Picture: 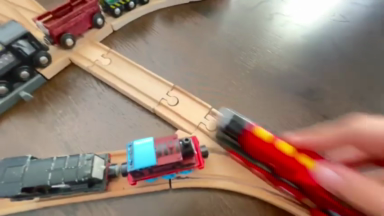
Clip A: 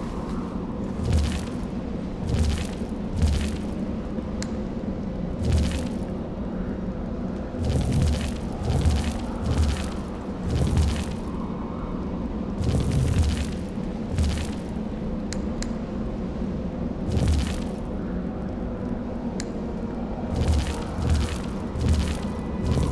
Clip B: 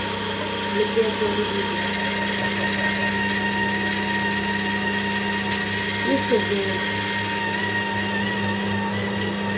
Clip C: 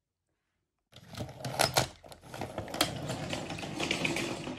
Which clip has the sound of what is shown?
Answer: C